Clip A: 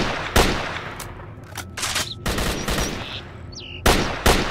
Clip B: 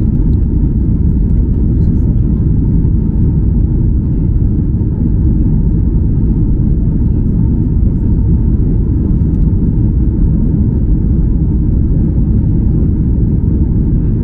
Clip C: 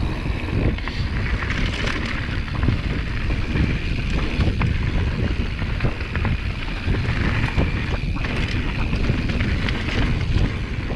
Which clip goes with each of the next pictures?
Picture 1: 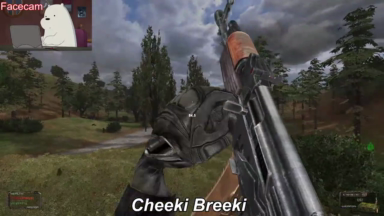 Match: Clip A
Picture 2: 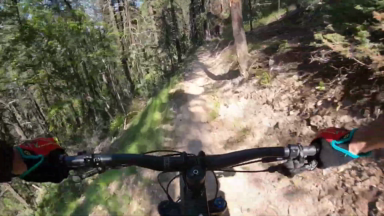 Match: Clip C